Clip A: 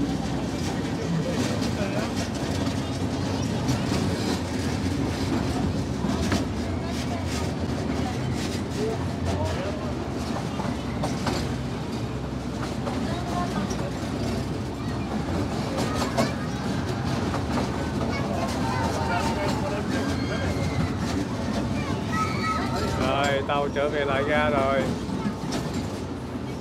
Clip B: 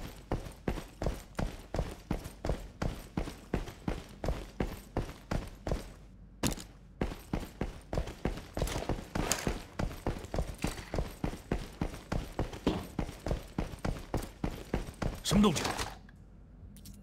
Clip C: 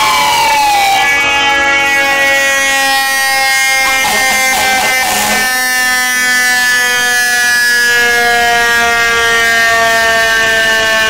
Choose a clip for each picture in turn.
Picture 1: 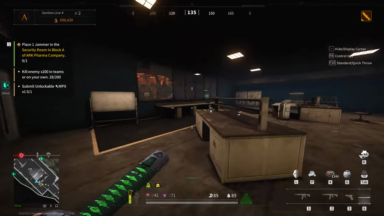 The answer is B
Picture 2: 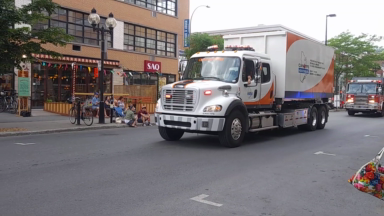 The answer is C